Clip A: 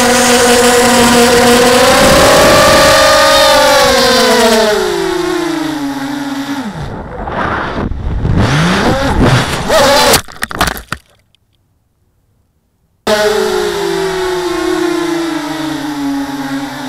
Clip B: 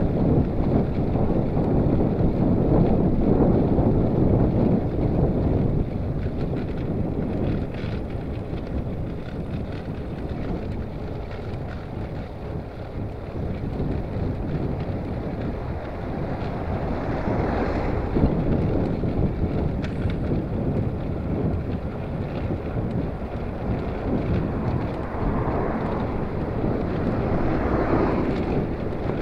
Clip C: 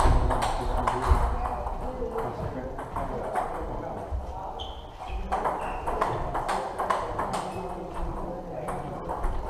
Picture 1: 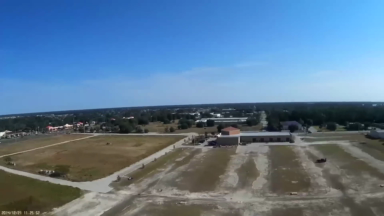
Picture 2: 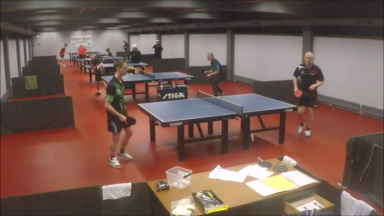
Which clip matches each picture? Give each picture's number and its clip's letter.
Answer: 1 A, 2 C